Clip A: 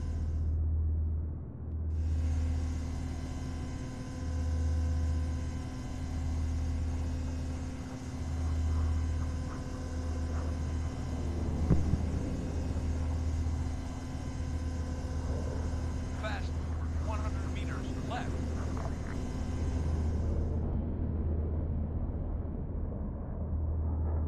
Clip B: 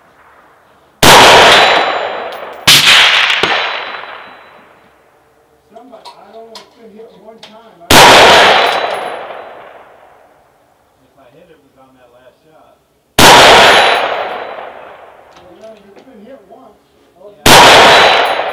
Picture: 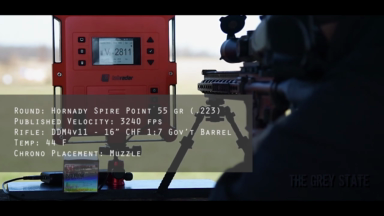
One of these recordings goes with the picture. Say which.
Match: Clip B